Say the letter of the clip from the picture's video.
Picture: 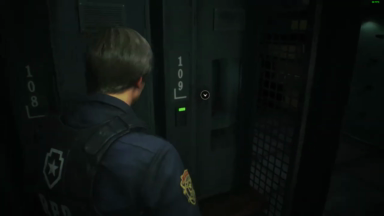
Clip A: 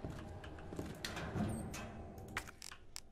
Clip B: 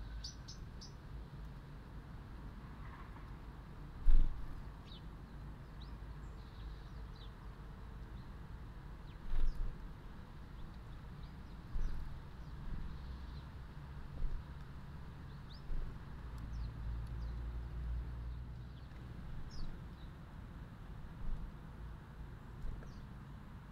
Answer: A